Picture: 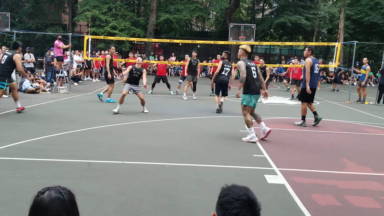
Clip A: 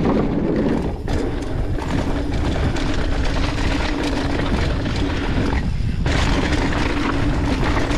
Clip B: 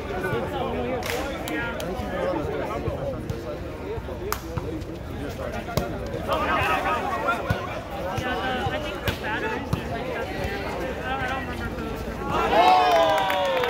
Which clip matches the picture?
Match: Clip B